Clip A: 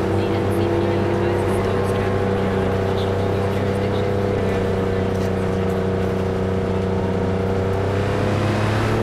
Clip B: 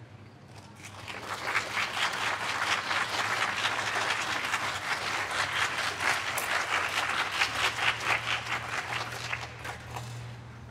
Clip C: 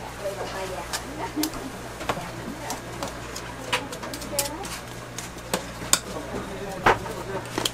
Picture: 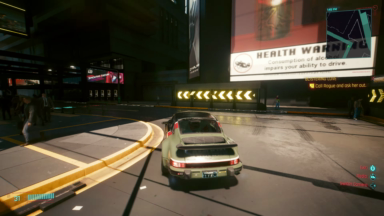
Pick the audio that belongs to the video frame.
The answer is A